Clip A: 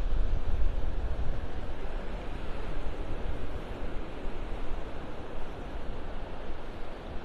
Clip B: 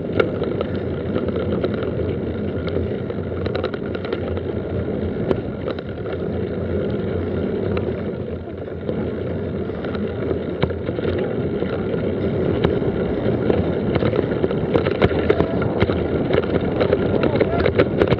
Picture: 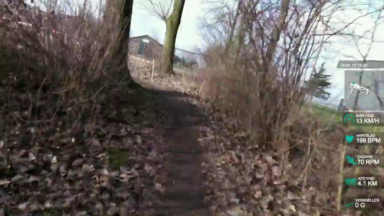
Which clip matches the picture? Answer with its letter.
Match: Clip B